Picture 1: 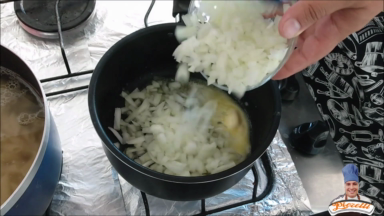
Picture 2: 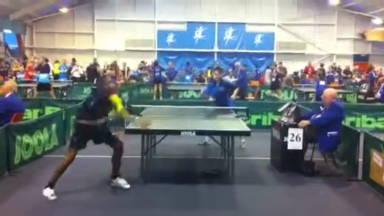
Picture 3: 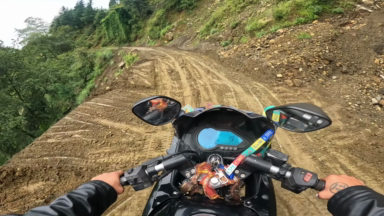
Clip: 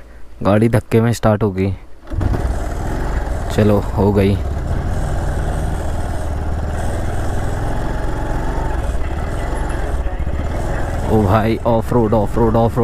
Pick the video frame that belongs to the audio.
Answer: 3